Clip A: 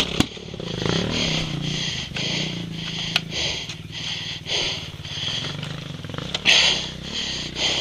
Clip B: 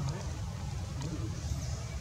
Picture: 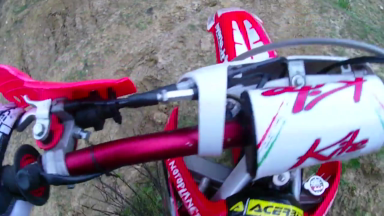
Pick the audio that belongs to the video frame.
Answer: A